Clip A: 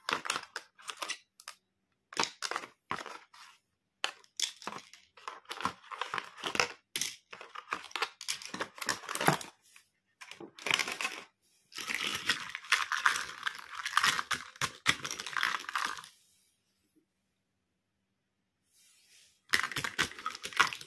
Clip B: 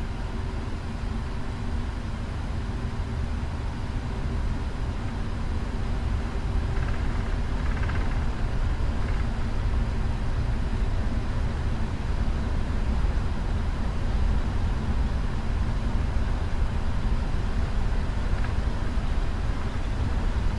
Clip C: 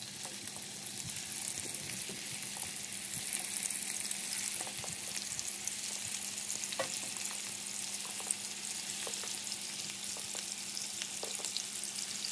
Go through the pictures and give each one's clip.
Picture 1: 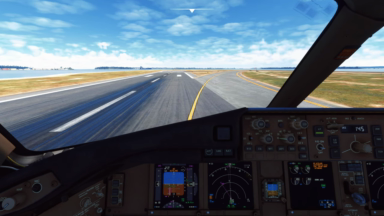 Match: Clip B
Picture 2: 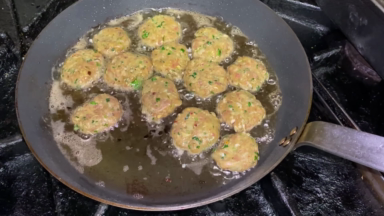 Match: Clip C